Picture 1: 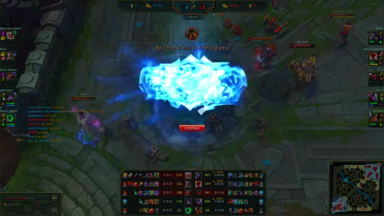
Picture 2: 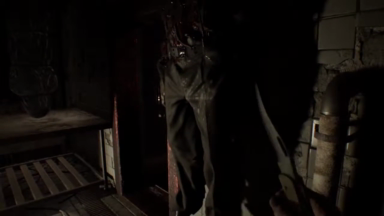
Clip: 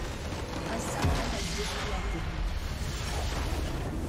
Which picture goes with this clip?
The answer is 1